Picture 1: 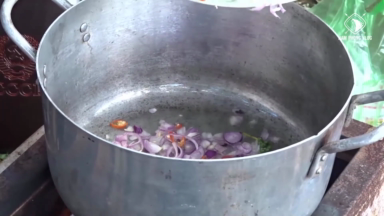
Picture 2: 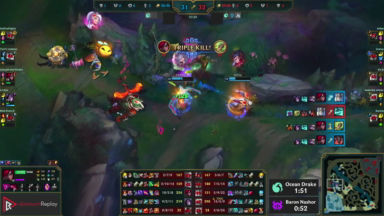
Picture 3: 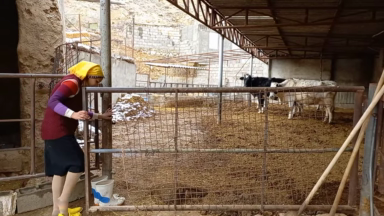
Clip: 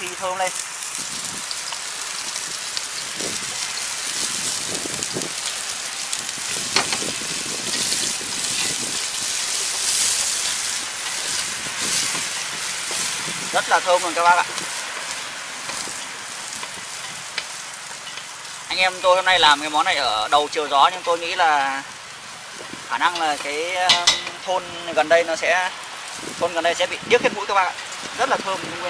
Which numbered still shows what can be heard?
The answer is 1